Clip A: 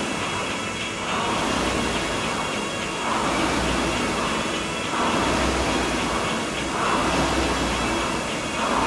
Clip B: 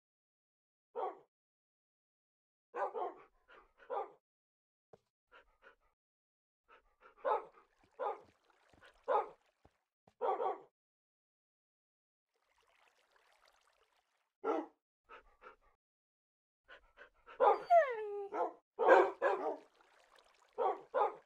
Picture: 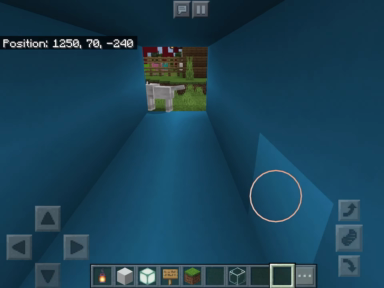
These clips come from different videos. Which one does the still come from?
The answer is B